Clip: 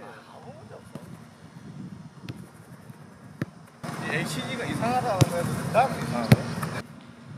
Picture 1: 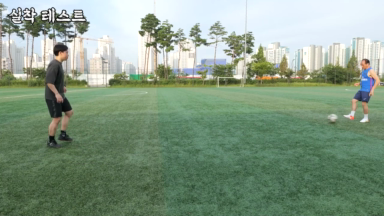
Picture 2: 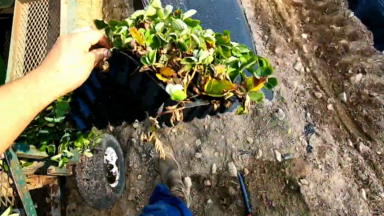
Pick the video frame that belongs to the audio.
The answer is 1